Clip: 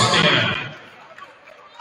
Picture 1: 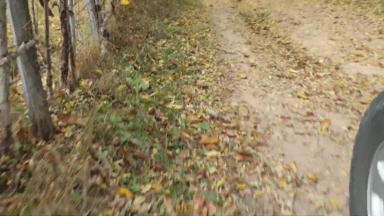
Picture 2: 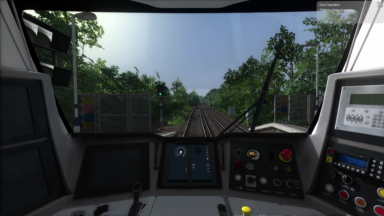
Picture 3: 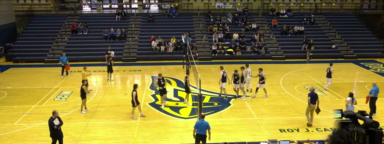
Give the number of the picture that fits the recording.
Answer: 3